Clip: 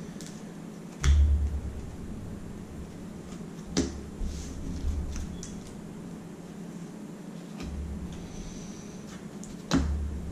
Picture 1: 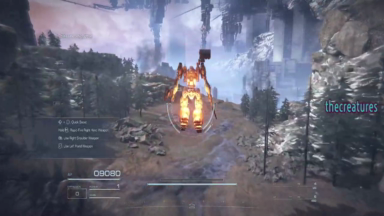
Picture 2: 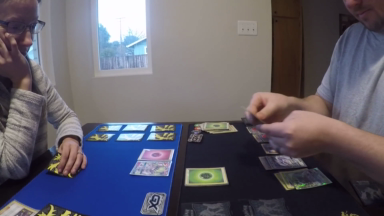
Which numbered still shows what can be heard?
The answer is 2